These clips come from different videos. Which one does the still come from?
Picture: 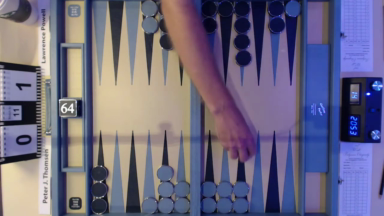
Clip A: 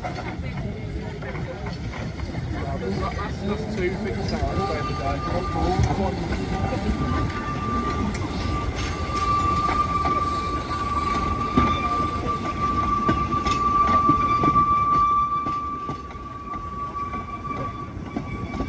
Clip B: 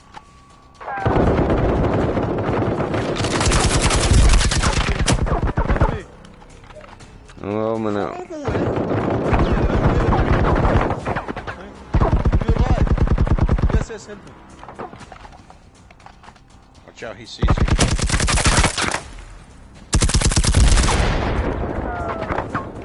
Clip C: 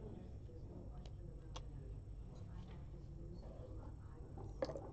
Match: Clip C